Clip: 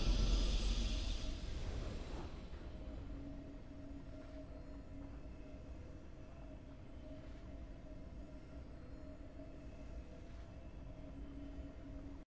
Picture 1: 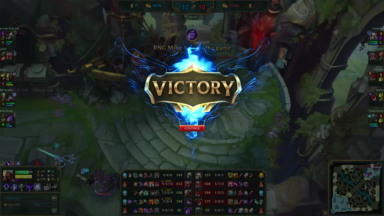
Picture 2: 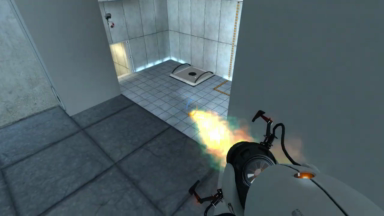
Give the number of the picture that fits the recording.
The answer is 1